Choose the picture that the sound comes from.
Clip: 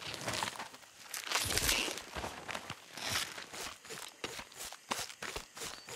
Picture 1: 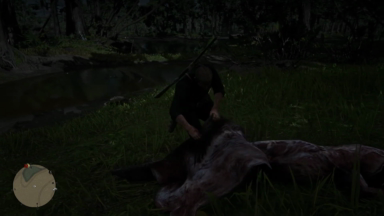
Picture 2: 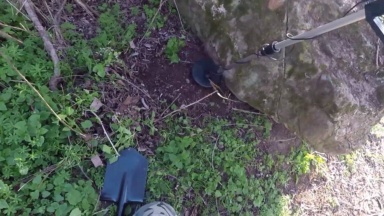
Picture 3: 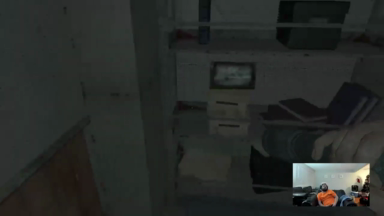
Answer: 1